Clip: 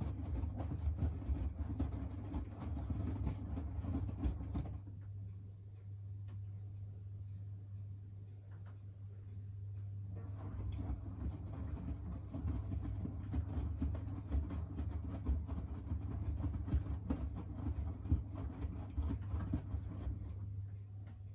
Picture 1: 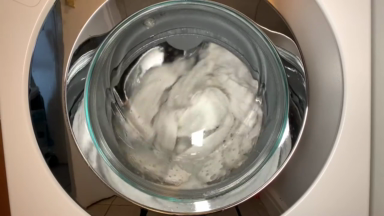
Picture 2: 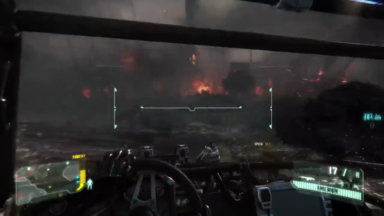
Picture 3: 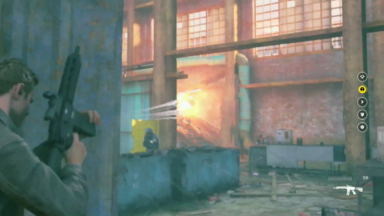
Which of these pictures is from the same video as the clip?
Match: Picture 1